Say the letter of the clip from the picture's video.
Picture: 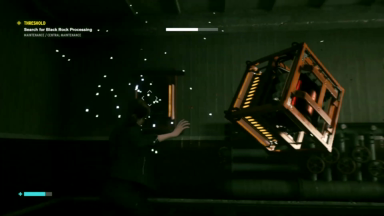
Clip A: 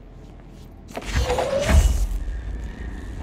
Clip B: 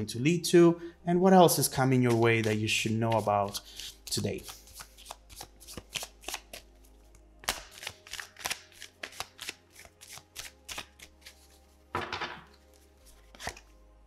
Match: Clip A